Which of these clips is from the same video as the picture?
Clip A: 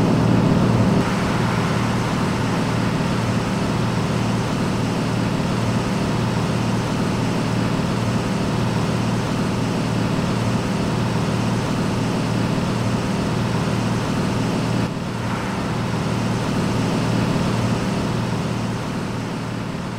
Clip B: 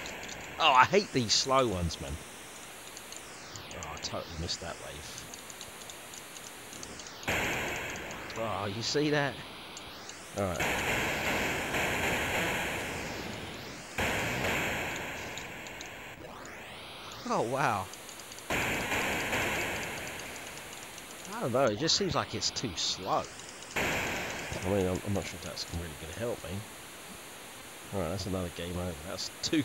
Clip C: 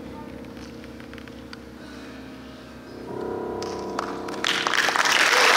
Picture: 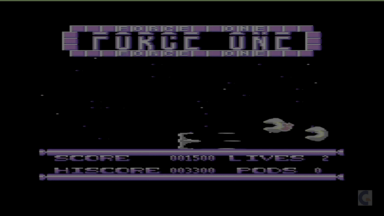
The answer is B